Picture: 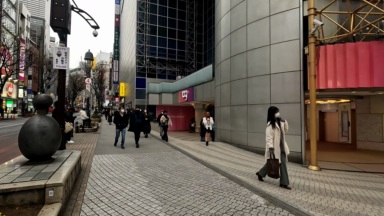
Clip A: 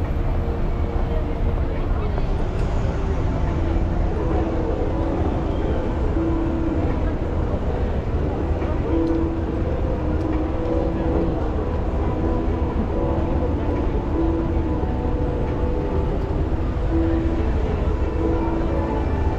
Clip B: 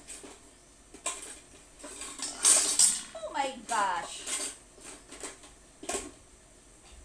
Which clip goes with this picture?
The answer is A